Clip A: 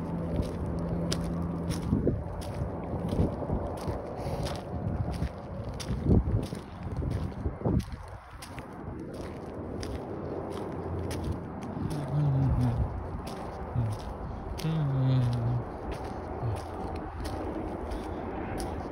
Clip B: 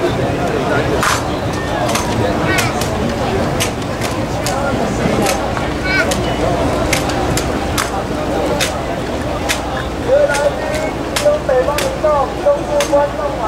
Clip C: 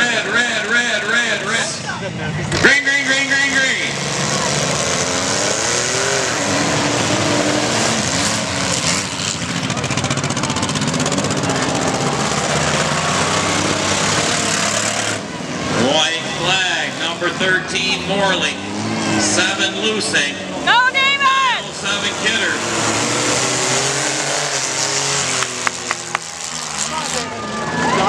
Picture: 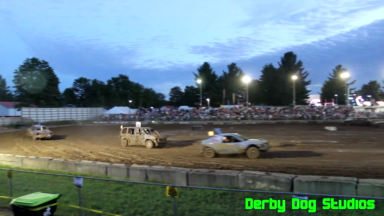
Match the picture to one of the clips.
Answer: C